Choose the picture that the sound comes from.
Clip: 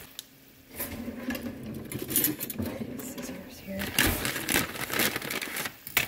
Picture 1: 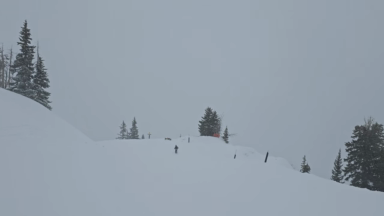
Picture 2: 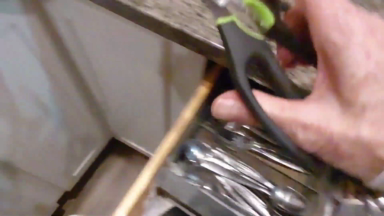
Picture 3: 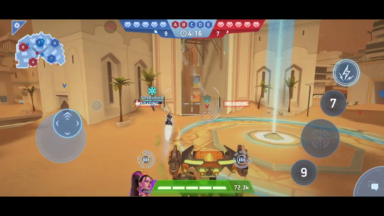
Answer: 2